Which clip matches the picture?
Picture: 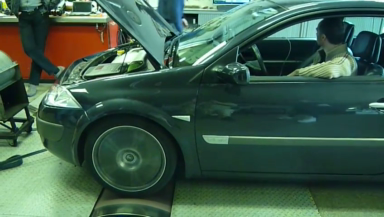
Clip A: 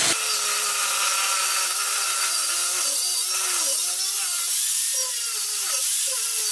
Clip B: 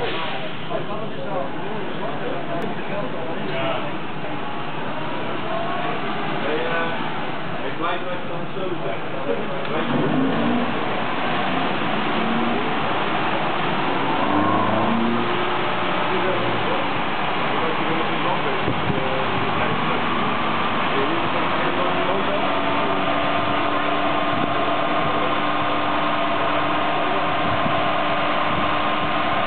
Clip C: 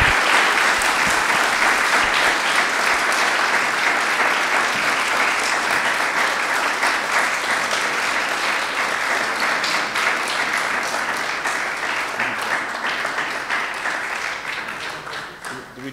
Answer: B